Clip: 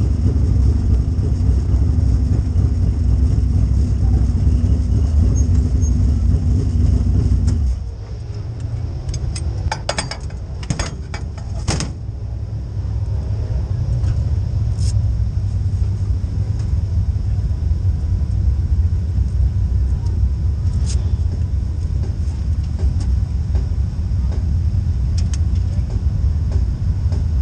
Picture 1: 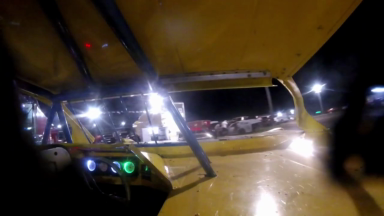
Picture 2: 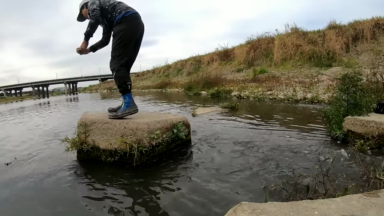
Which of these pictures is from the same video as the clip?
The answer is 1